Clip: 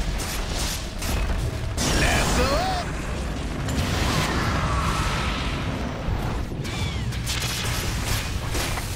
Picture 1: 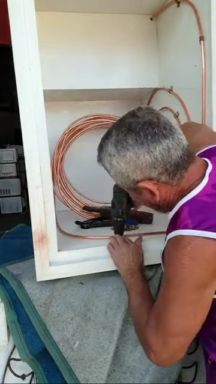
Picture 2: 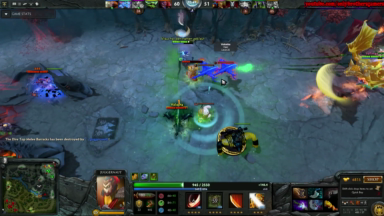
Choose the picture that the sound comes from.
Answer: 2